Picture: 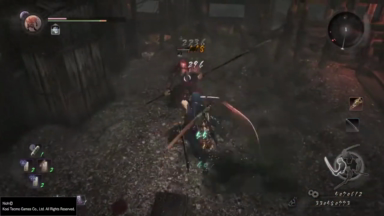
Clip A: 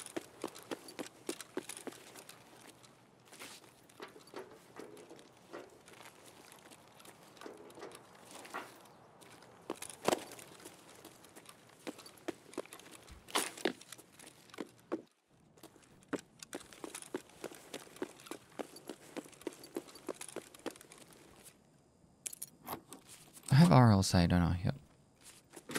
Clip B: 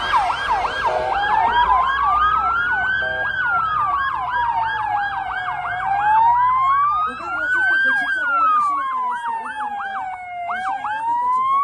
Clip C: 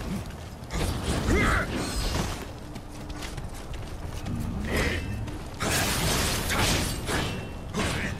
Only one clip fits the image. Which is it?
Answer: C